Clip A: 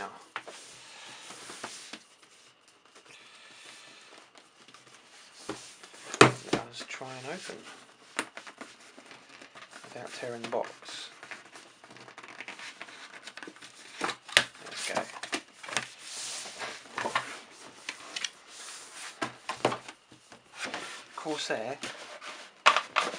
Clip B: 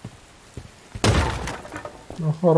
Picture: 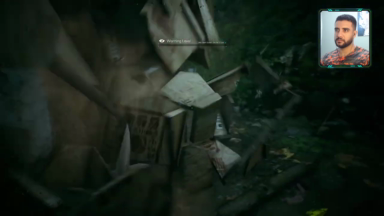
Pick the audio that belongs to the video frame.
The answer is B